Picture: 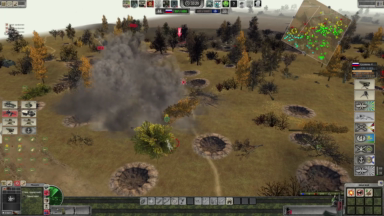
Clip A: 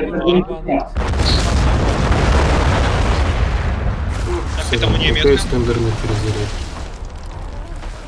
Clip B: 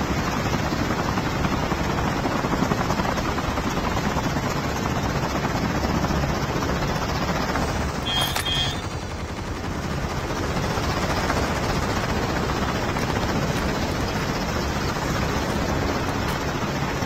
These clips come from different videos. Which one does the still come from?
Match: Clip A